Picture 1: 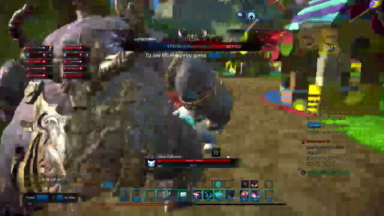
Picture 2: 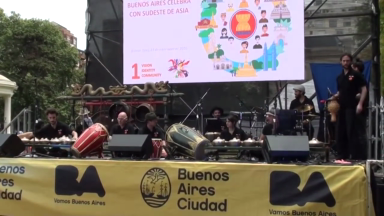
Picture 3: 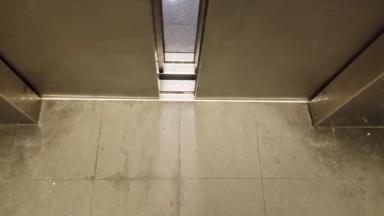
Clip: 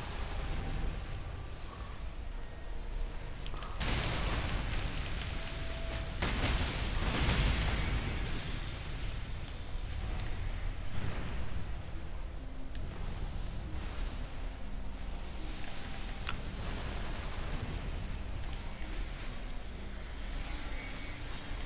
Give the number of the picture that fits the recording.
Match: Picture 1